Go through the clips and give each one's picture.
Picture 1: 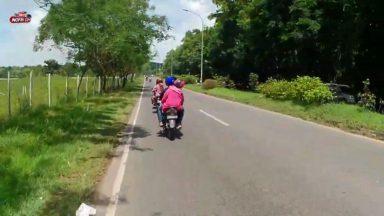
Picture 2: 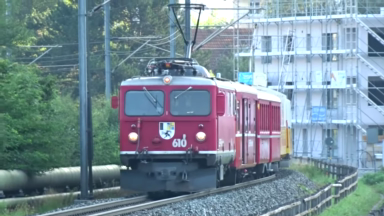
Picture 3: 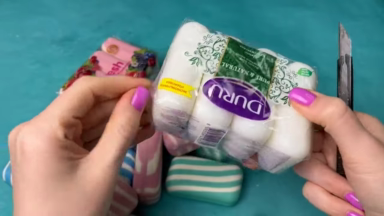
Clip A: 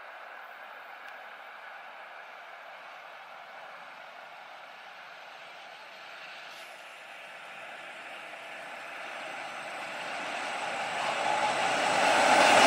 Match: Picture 2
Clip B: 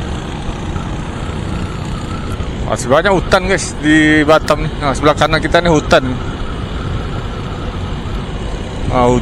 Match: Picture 1